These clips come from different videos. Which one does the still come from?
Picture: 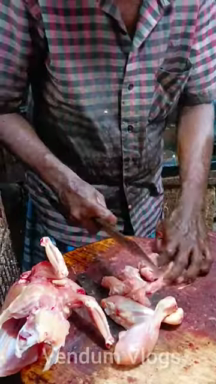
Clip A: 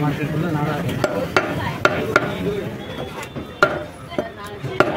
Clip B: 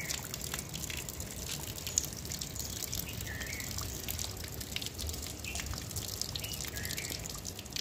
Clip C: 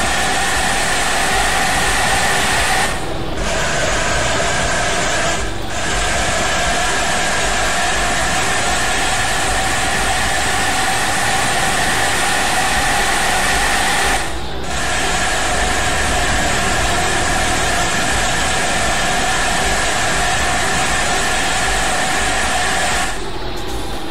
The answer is A